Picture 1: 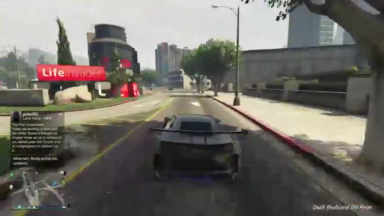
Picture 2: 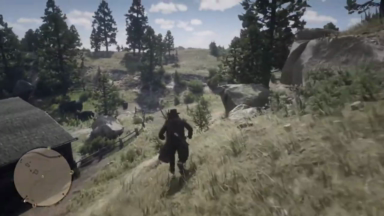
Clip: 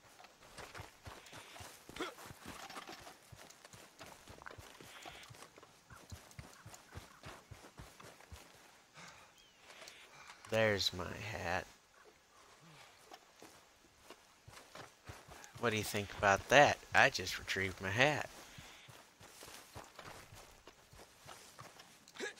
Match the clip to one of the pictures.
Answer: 2